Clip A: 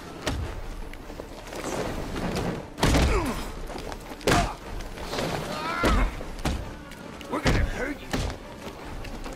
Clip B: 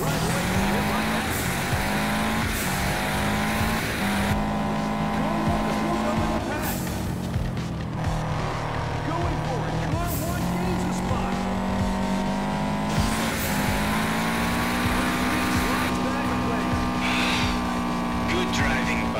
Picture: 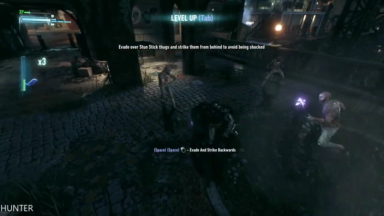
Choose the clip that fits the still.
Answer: A